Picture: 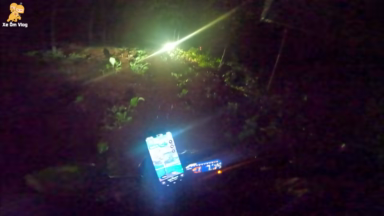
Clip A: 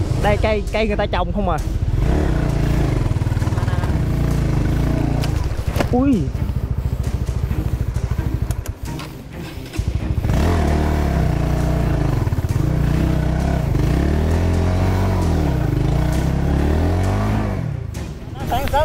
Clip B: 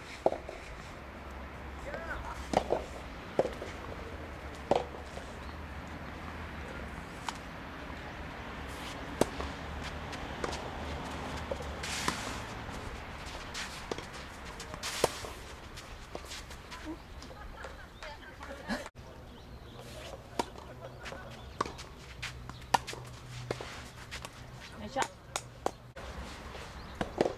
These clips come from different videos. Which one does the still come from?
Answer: A